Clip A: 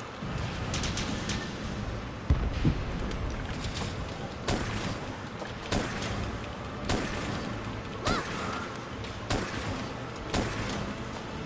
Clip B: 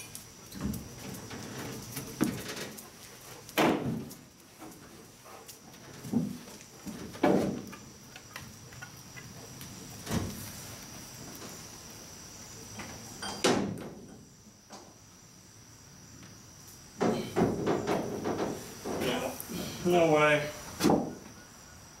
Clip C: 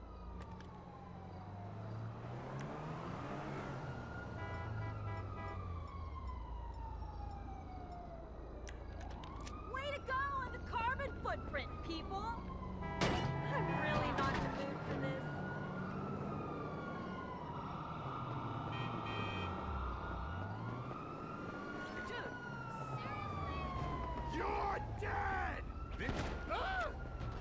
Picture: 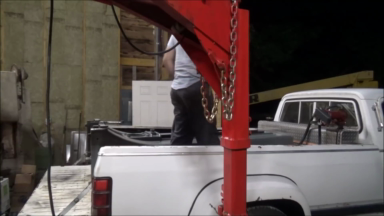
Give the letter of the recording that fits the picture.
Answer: B